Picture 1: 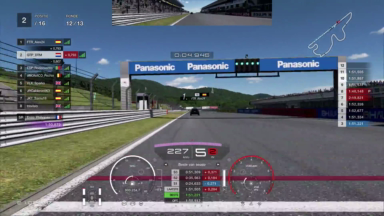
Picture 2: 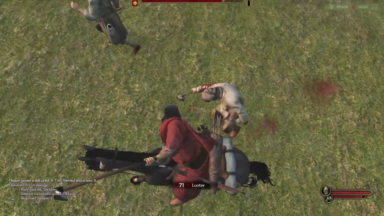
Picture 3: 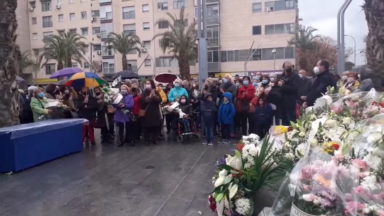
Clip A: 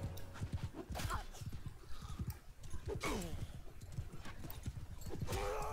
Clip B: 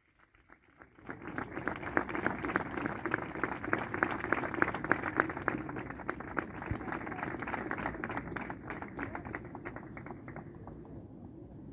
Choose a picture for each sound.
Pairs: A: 2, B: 3